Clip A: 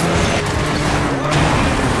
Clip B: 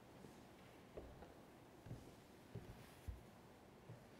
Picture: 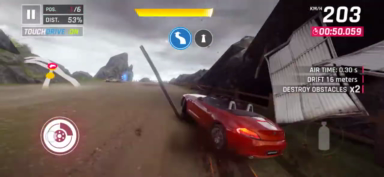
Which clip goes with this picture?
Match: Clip A